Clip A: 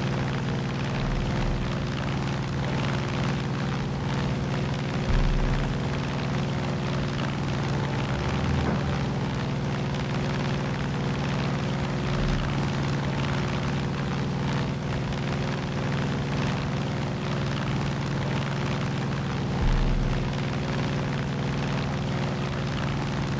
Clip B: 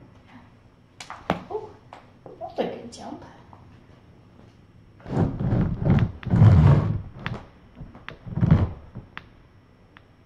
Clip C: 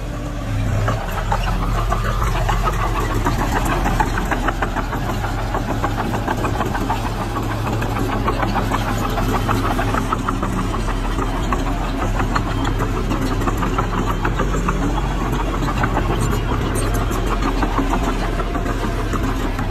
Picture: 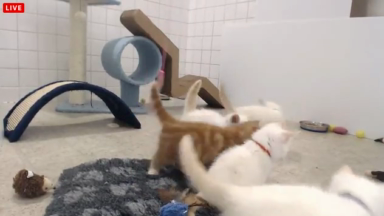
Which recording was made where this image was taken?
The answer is B